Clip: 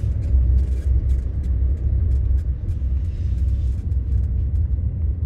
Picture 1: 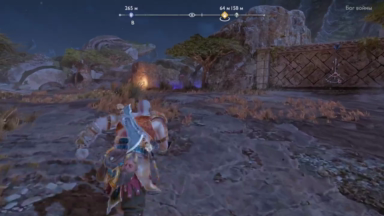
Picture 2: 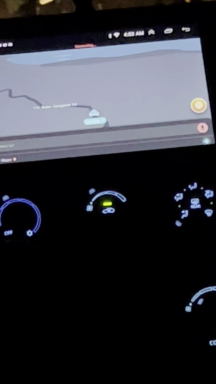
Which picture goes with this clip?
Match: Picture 2